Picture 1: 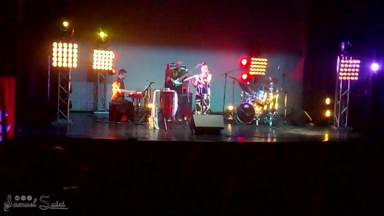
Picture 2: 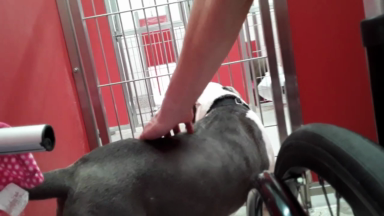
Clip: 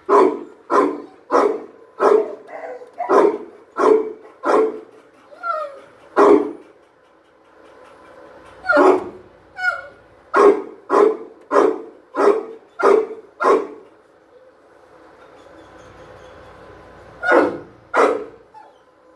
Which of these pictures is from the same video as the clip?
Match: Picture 2